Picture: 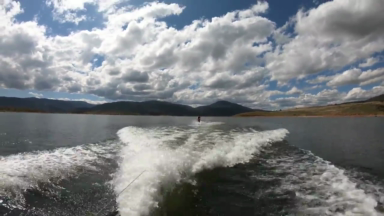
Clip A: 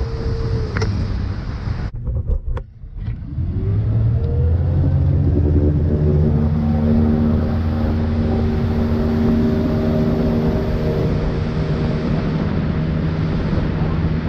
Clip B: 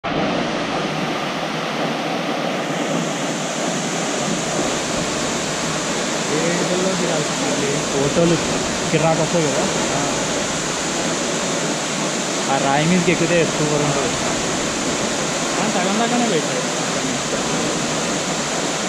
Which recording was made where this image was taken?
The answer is A